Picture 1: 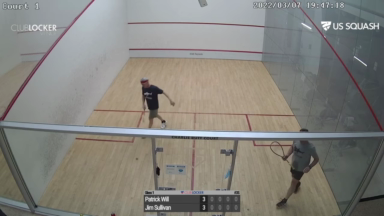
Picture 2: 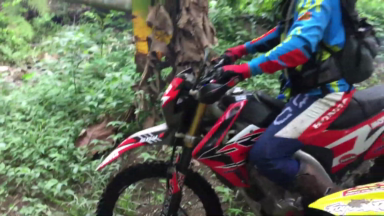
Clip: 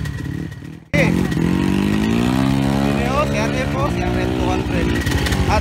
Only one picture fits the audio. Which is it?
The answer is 2